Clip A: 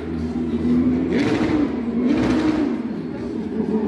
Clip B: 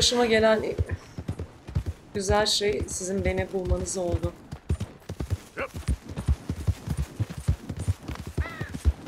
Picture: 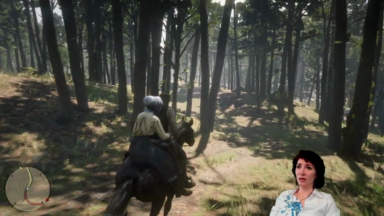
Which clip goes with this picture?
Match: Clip B